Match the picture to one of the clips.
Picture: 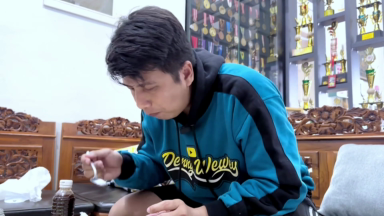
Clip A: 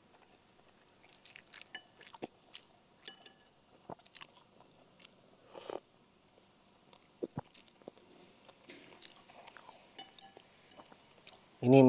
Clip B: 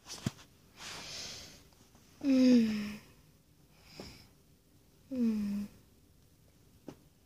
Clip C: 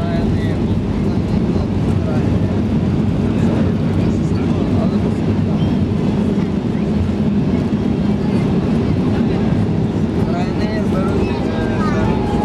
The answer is A